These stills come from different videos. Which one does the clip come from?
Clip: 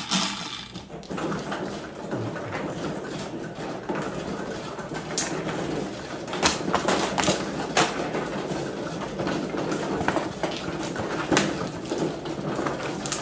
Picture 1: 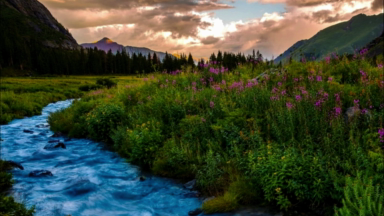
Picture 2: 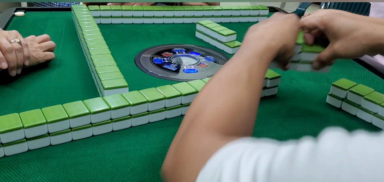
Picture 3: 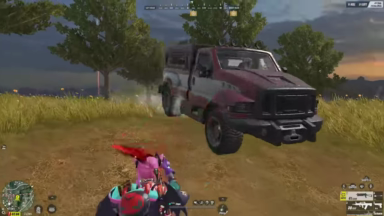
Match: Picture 2